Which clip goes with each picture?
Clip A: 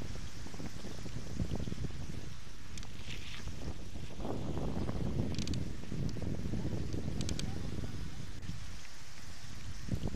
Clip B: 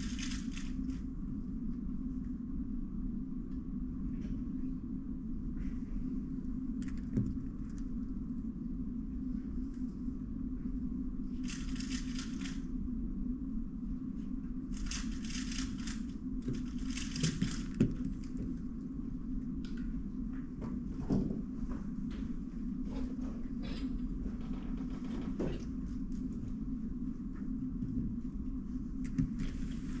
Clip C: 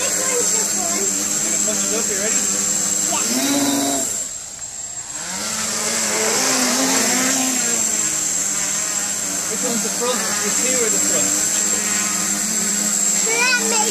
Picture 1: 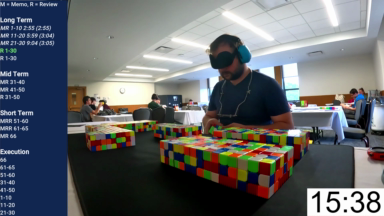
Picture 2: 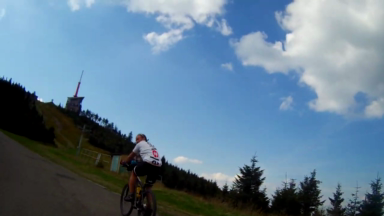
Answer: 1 B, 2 A